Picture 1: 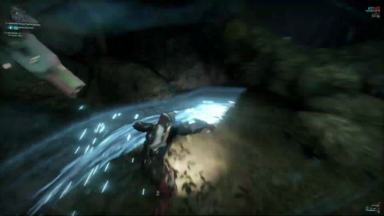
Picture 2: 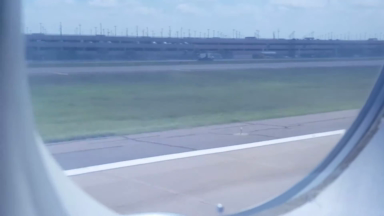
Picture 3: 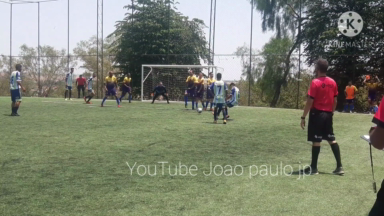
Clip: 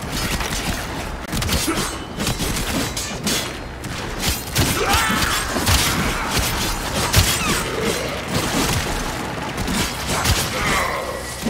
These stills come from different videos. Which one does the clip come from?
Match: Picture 1